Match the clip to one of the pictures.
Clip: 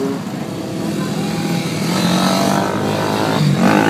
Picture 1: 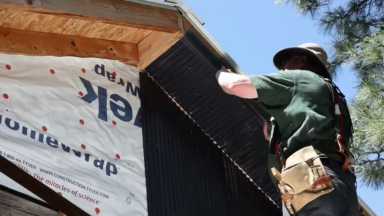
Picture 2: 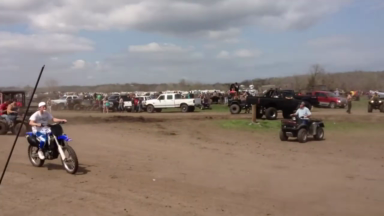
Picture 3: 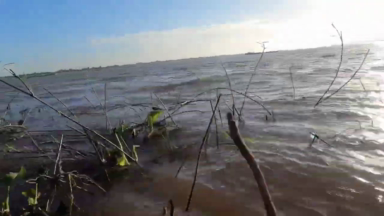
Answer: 2